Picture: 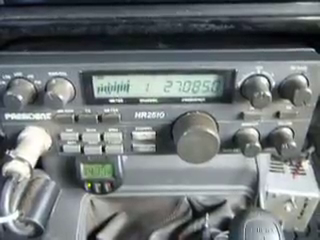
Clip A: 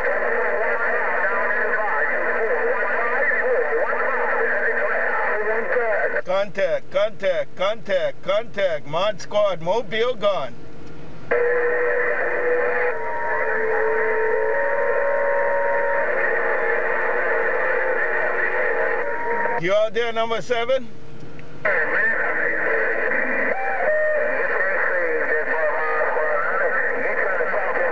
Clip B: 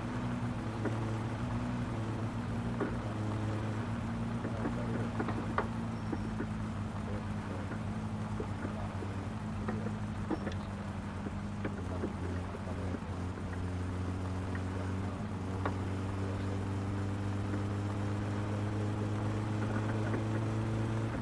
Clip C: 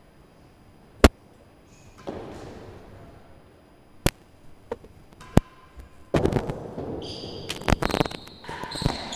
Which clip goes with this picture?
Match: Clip A